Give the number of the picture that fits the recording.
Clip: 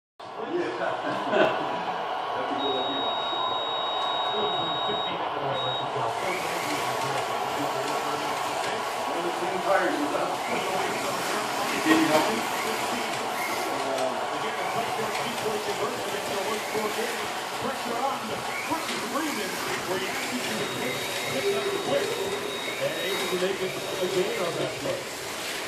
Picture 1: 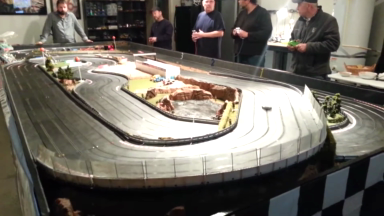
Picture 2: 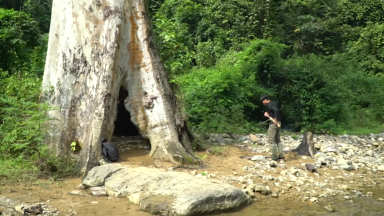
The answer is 1